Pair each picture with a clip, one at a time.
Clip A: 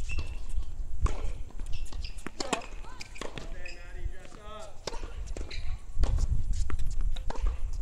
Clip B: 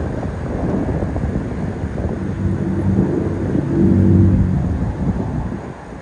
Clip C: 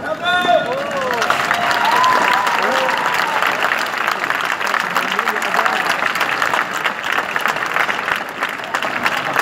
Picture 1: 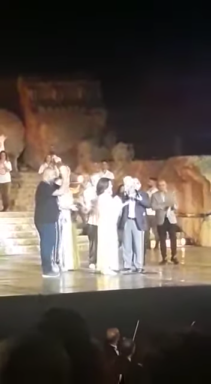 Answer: C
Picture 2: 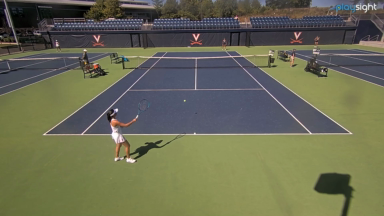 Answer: A